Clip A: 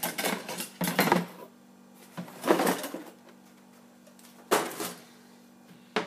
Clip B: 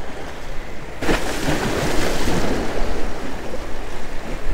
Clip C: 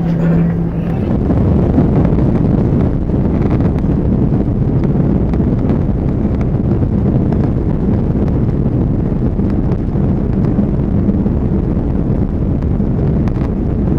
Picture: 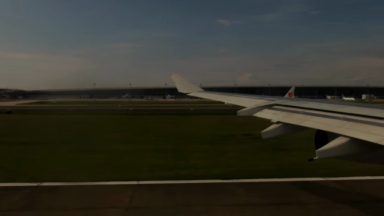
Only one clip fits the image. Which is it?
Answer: C